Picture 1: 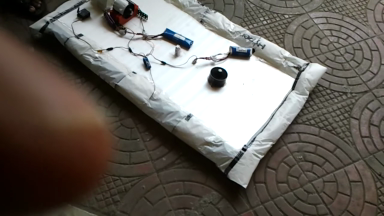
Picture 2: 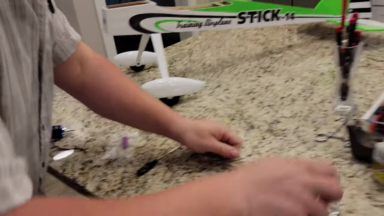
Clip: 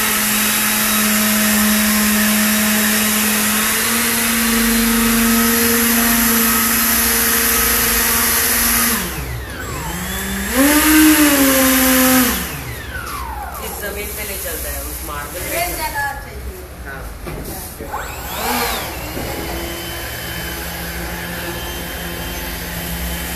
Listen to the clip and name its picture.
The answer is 1